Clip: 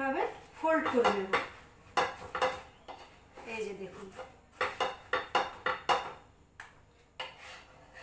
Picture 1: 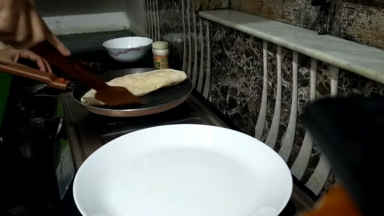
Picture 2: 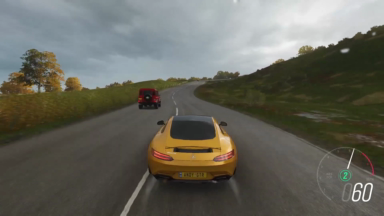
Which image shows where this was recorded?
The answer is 1